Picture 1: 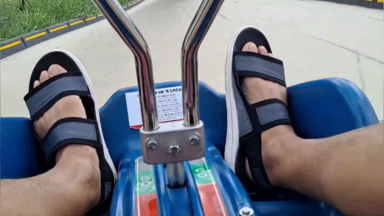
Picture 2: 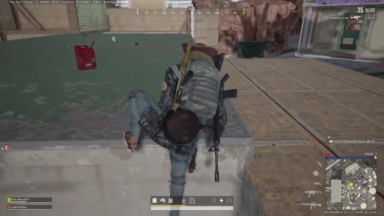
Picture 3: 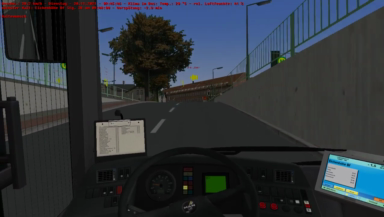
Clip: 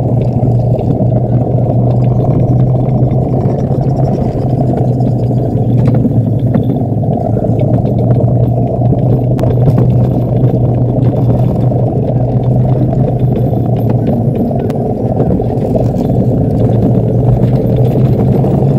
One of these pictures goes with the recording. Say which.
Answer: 1